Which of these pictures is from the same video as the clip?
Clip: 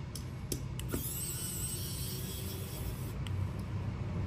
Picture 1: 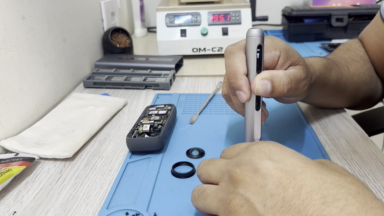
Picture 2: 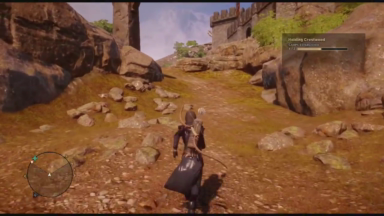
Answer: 1